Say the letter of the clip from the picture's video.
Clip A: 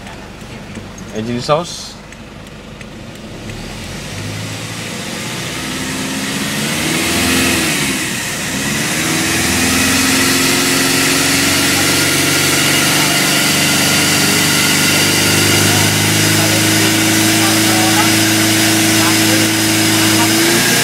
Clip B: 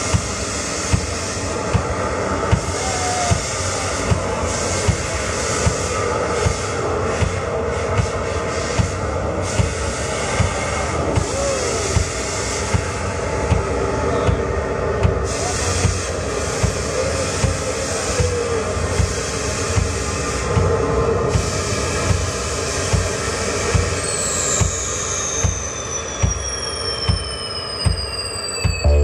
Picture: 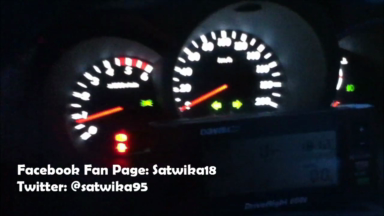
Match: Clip A